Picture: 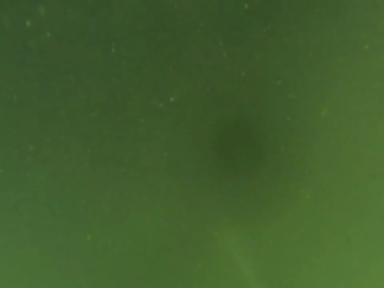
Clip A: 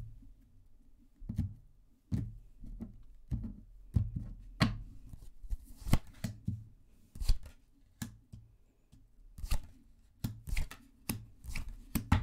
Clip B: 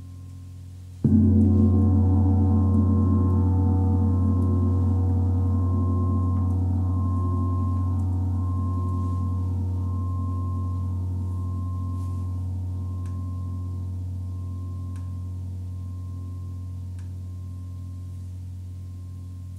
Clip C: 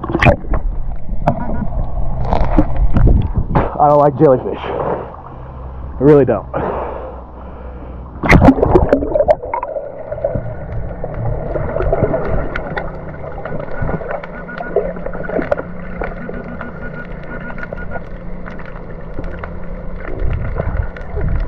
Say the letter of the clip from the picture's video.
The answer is C